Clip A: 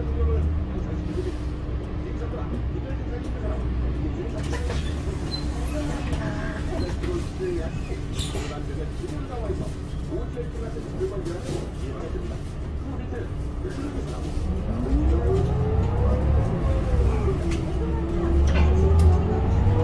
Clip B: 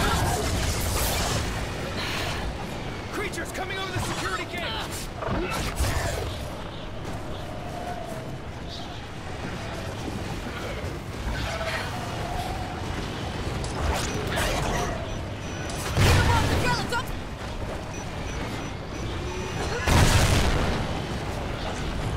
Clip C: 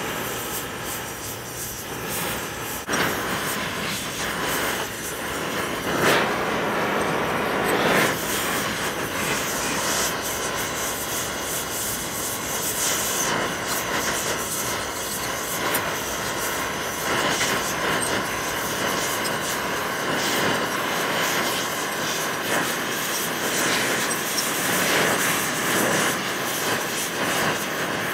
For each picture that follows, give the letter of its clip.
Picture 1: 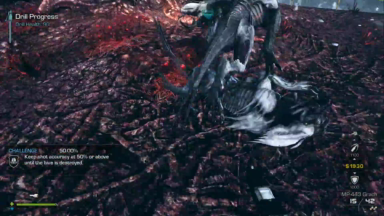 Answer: B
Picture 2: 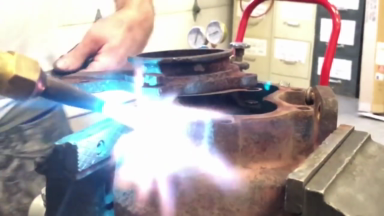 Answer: C